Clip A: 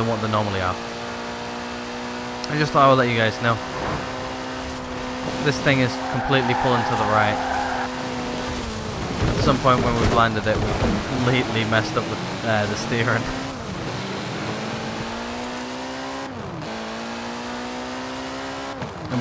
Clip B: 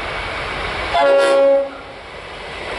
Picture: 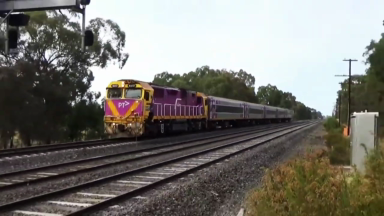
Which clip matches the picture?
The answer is B